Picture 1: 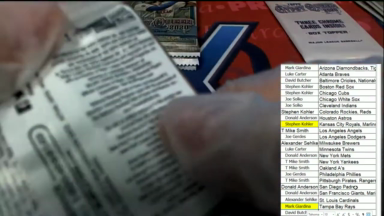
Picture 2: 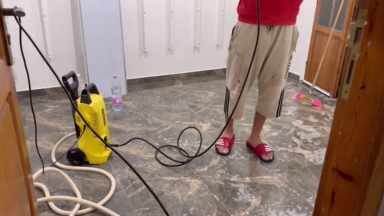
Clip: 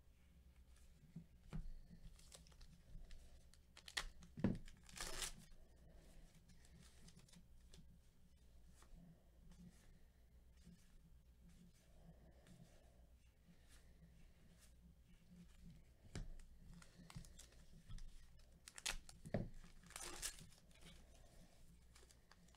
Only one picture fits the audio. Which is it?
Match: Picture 1